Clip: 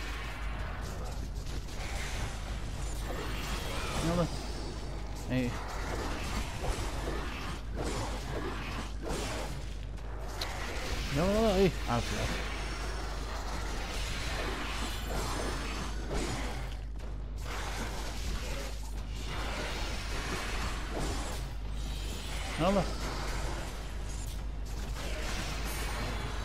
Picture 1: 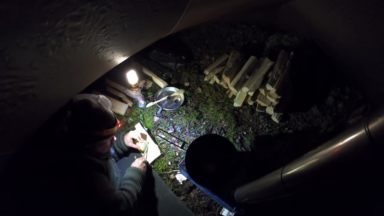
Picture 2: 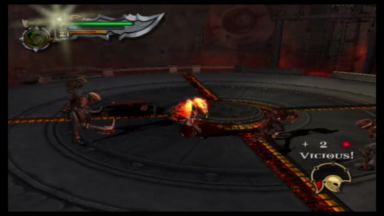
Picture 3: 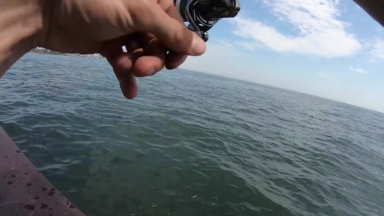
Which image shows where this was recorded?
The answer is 2